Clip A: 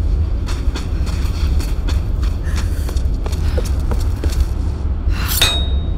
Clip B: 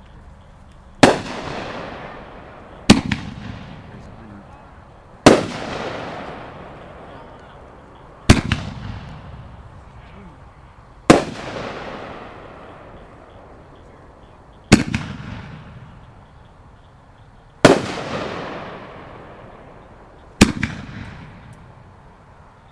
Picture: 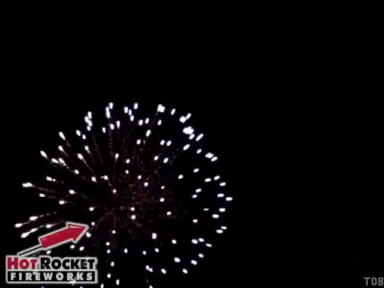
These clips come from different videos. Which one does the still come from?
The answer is B